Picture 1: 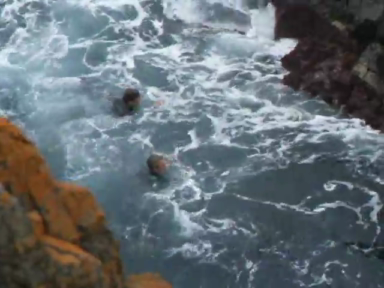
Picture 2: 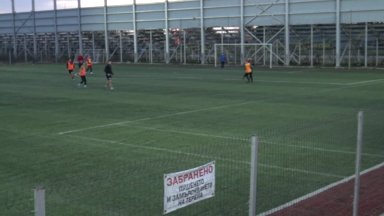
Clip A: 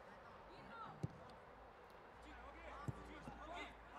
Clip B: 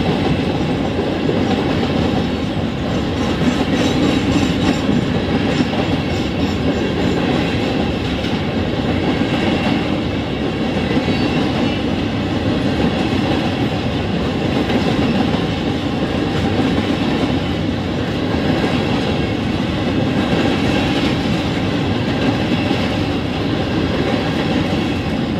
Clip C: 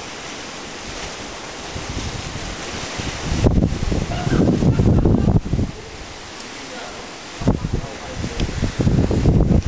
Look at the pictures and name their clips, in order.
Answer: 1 C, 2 A